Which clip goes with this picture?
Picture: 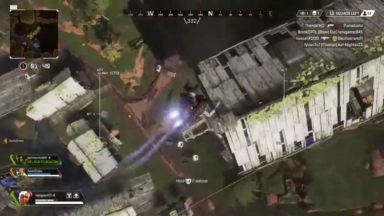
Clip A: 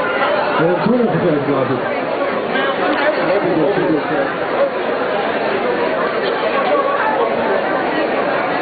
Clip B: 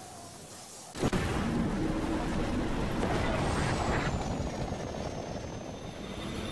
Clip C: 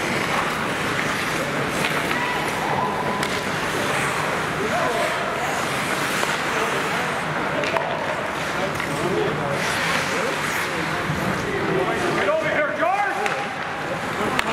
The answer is B